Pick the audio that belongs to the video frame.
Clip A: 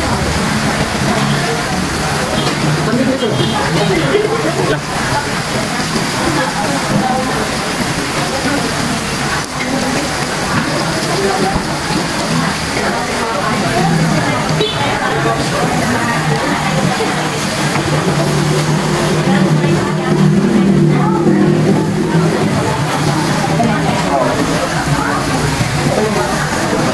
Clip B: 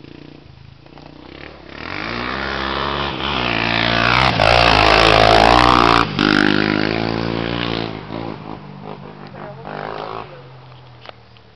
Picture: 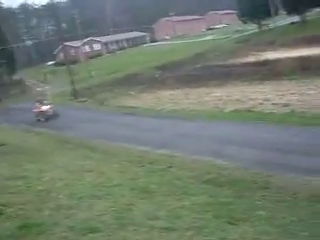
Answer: B